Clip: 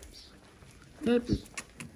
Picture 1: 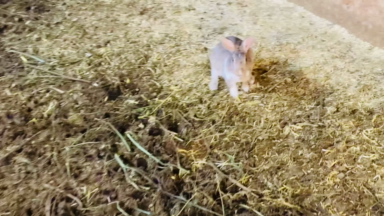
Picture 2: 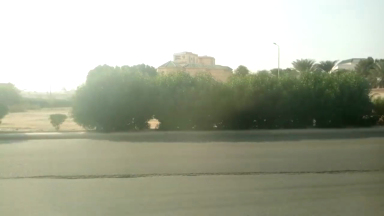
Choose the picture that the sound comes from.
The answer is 1